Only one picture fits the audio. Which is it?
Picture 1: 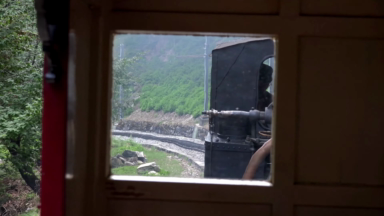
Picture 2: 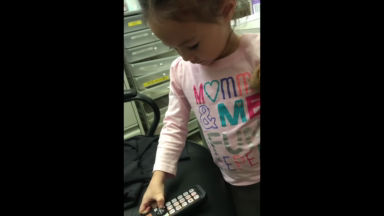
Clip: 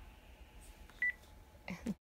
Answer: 2